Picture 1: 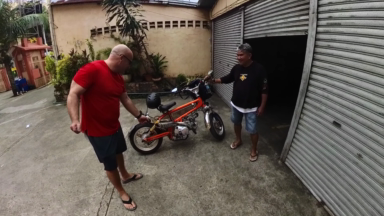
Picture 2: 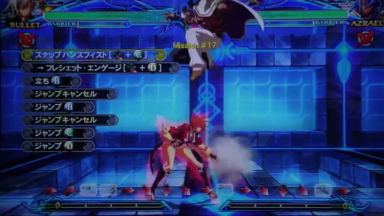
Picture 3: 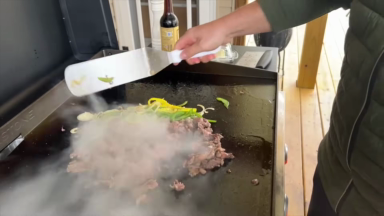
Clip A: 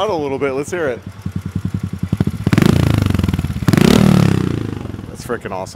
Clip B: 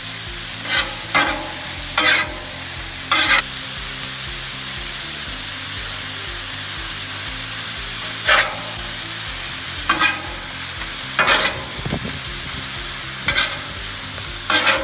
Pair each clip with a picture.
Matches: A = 1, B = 3